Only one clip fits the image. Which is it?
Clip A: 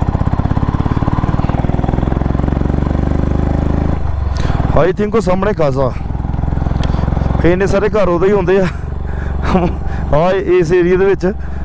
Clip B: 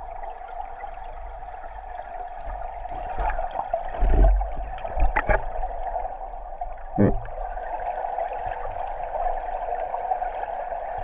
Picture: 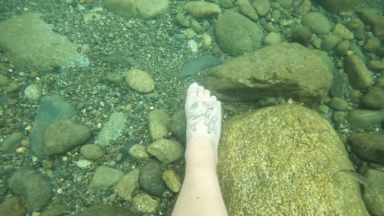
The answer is B